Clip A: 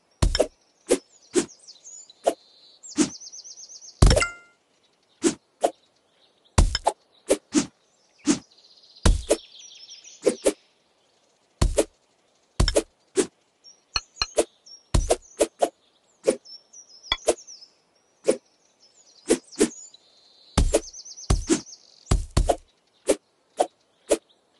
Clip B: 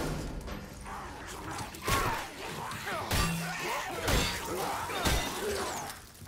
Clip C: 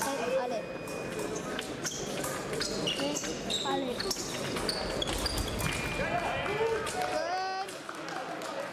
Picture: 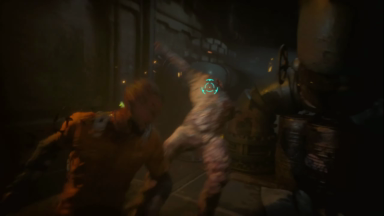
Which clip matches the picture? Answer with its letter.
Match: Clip B